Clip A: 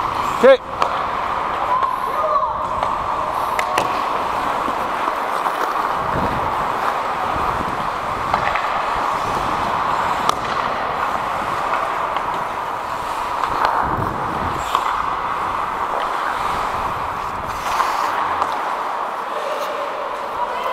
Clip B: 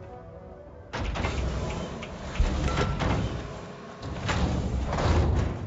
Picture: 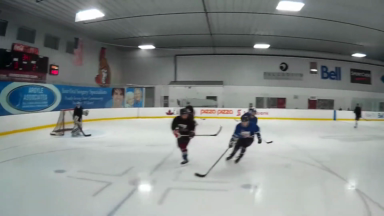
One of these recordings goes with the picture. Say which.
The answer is A